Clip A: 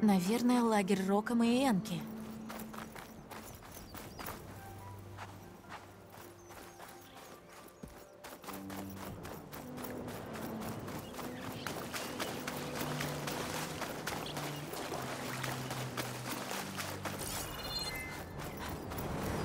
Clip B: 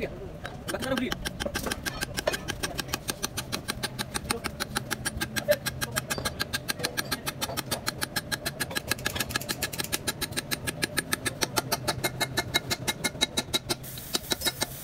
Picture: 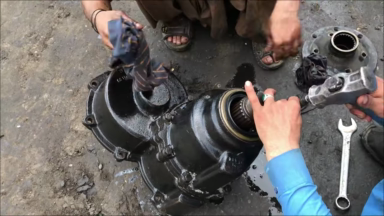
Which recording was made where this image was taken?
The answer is B